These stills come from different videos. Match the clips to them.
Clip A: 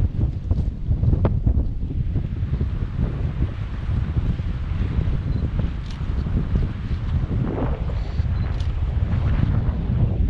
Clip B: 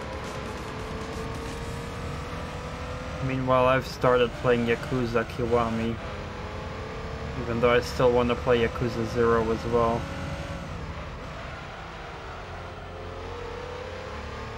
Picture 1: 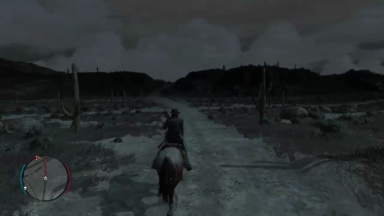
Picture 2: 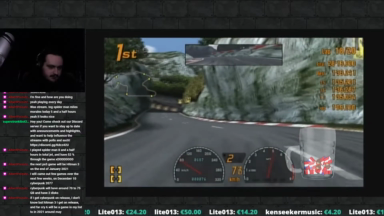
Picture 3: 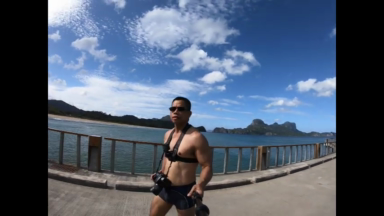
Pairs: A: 3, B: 2